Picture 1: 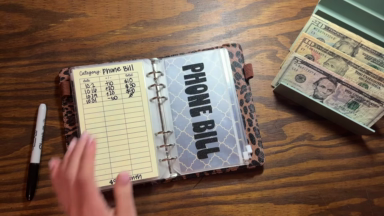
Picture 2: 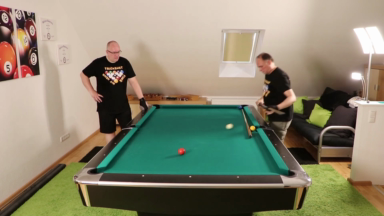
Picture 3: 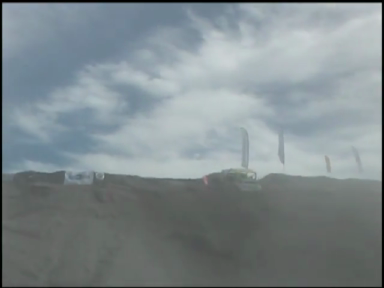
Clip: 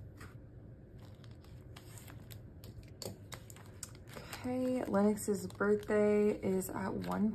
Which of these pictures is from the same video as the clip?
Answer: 1